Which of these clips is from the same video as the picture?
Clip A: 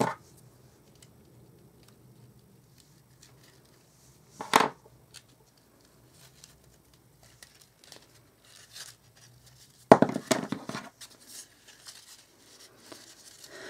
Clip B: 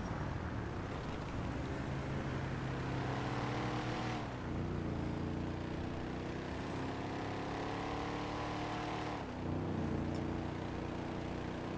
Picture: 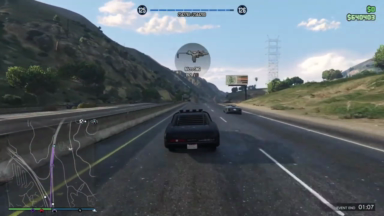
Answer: B